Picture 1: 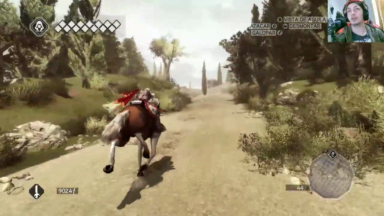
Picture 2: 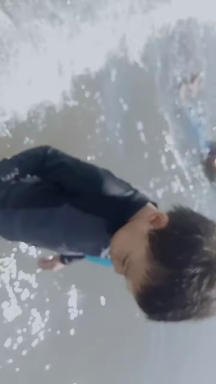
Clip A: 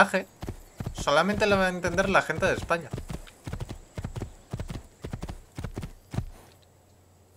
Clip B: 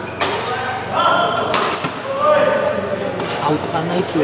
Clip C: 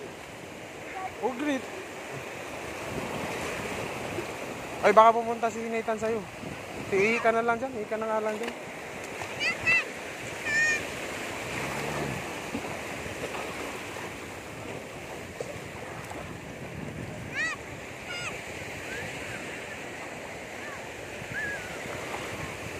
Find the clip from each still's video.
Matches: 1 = A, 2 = C